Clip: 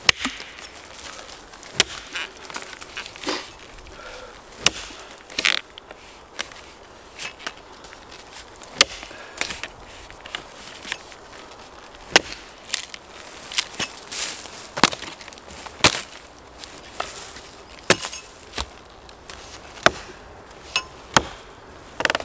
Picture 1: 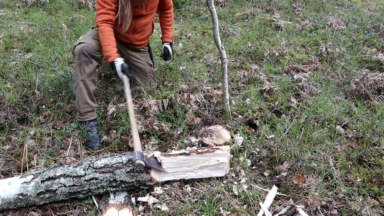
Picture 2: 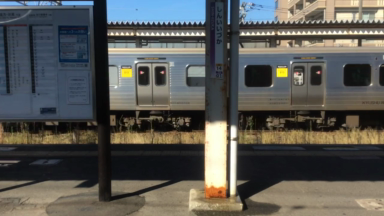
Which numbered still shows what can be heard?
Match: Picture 1